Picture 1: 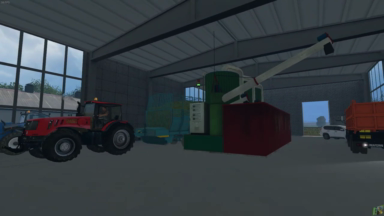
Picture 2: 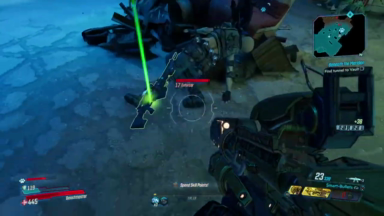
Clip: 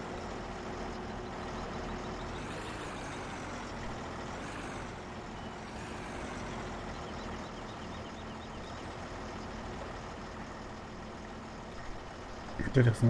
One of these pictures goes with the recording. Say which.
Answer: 1